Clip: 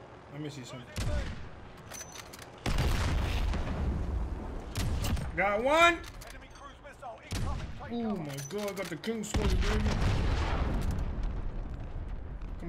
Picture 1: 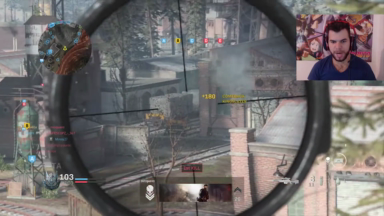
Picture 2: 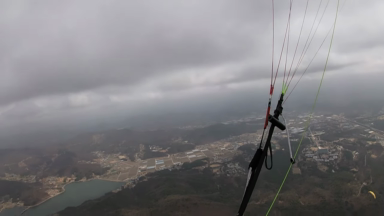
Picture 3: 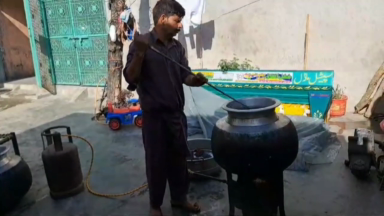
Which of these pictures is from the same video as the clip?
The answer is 1